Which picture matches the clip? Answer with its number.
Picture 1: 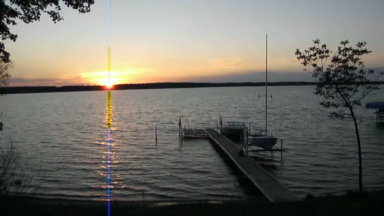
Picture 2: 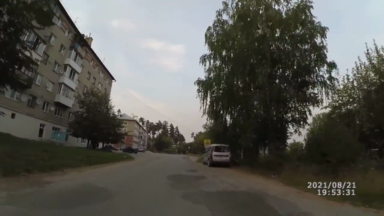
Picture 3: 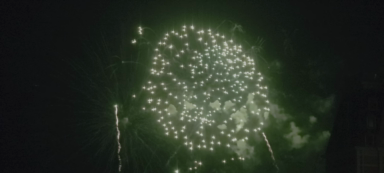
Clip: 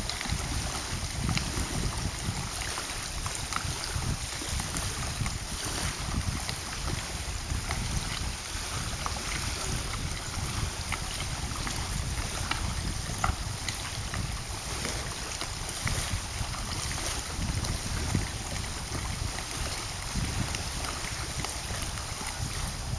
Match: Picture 1